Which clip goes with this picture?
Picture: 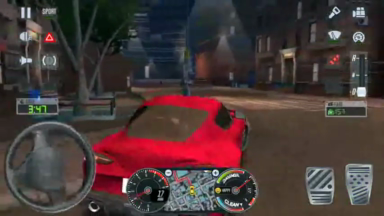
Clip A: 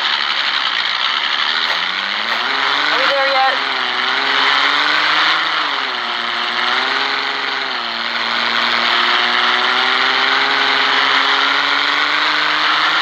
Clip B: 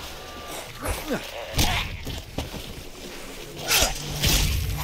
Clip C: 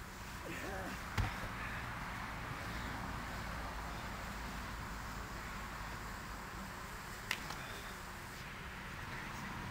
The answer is A